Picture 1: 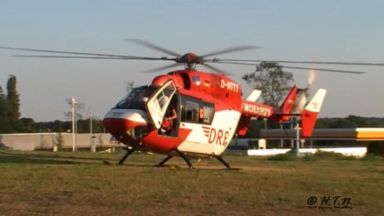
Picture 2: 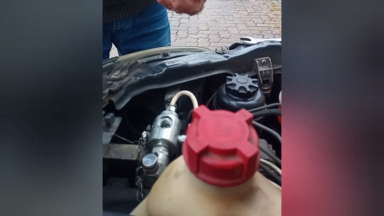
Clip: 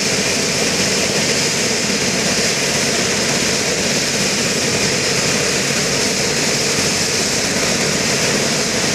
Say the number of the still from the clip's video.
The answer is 1